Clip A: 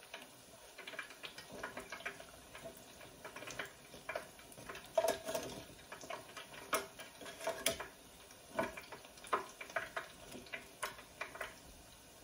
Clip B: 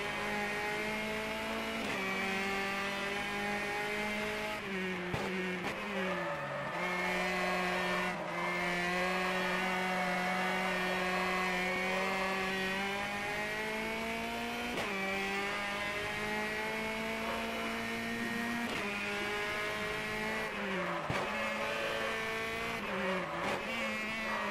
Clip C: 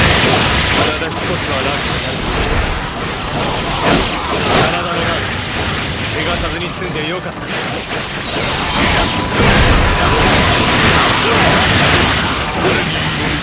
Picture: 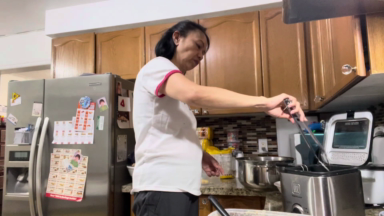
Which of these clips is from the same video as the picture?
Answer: A